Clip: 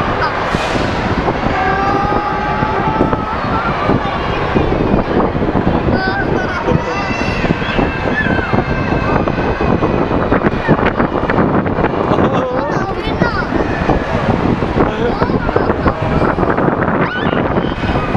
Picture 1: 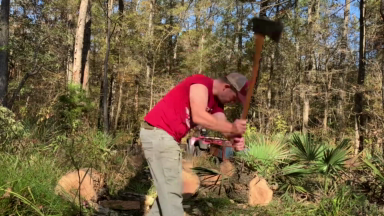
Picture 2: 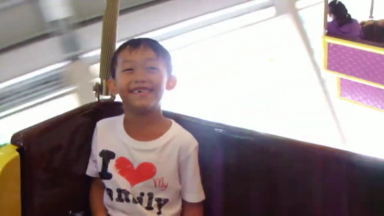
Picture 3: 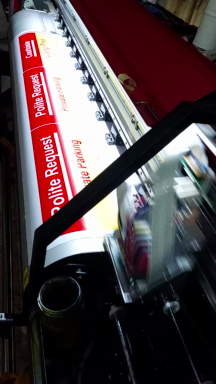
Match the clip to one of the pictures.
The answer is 2